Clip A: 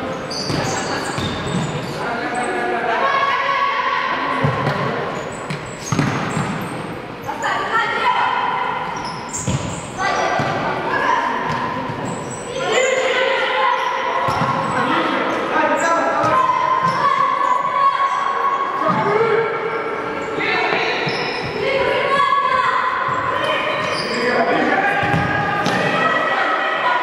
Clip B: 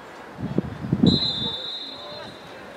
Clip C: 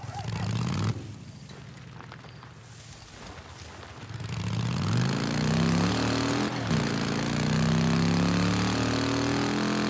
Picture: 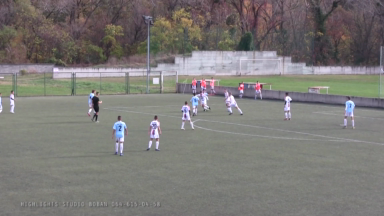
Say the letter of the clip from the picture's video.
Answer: B